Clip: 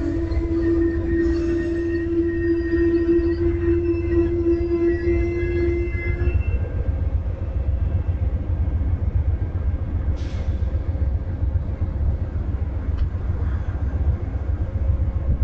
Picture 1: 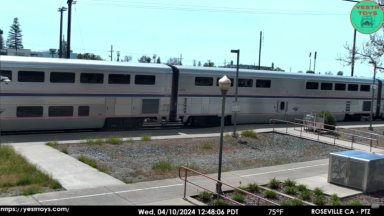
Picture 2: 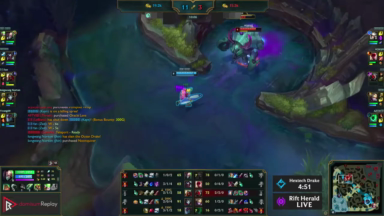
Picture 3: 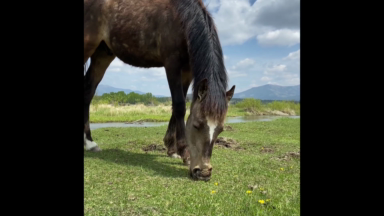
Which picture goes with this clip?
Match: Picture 1